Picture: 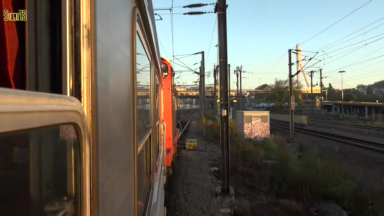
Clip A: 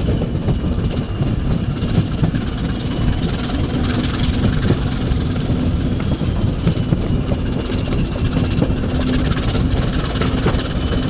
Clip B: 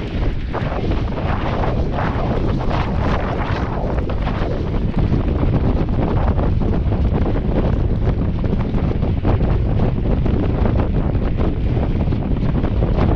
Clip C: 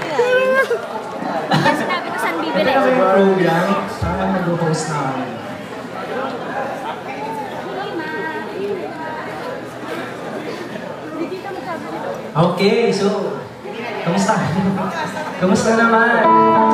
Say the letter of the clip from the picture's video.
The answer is A